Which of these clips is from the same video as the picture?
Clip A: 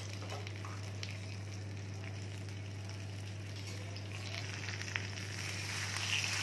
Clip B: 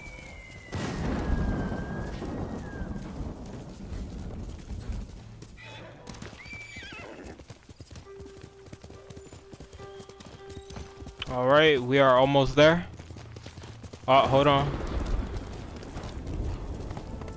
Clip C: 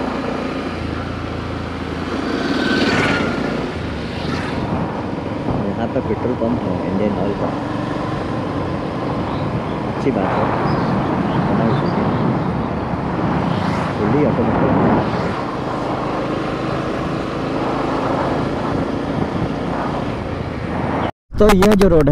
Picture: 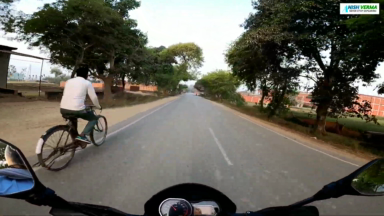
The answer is C